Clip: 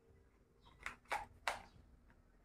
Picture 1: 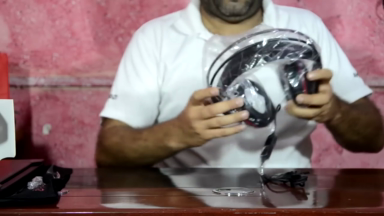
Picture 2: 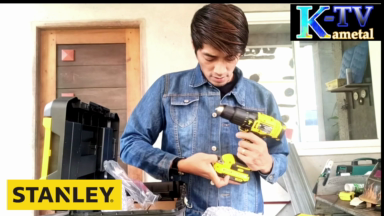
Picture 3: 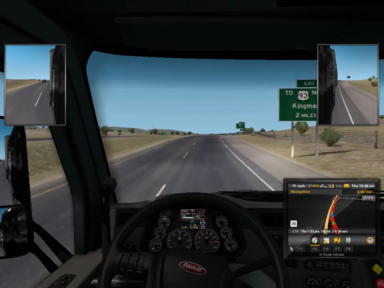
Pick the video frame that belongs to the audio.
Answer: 2